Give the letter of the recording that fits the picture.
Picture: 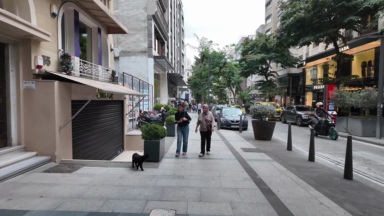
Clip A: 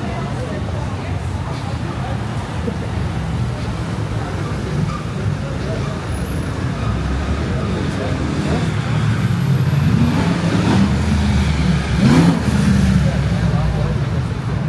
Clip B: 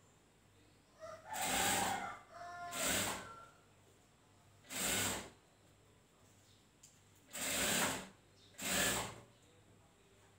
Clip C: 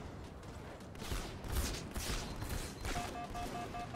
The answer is A